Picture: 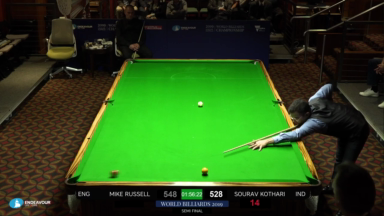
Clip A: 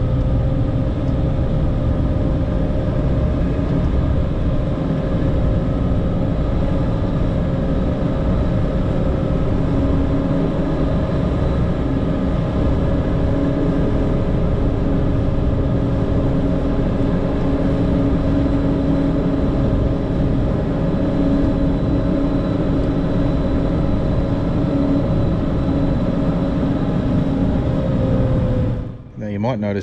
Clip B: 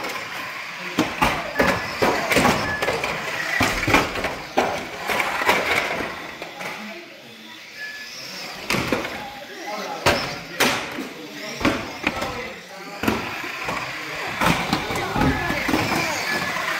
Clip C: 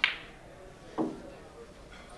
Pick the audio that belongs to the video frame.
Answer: C